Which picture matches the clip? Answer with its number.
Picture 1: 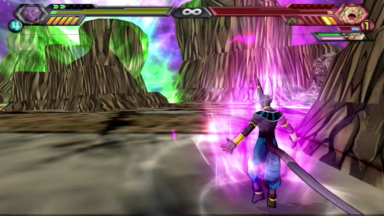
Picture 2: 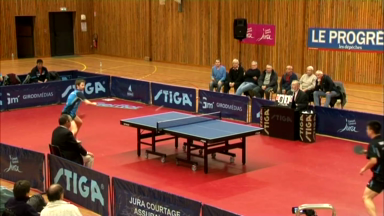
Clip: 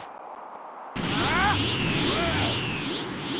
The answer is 1